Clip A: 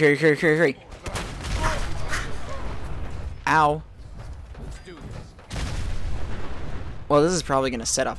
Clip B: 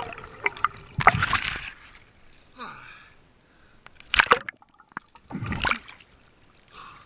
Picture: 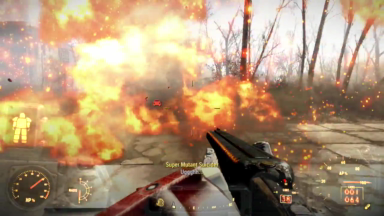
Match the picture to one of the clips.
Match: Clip A